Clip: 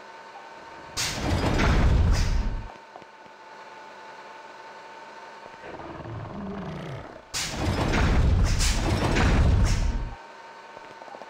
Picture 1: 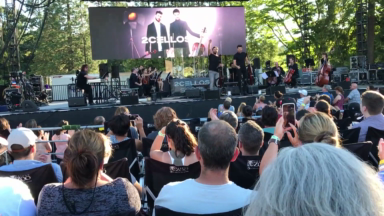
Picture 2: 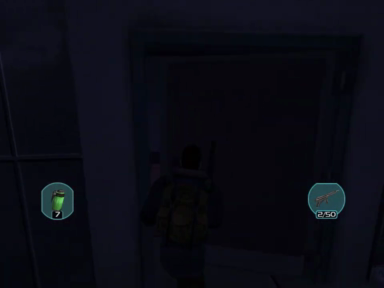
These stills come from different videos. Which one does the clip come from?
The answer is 2